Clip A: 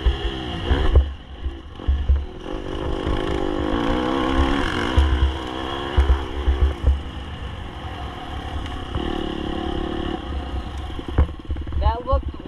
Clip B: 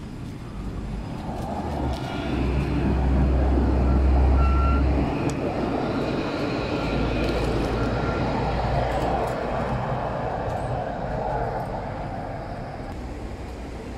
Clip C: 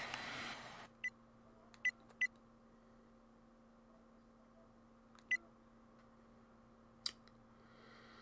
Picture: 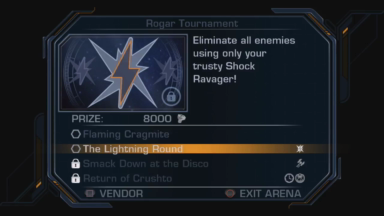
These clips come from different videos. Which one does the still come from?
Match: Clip C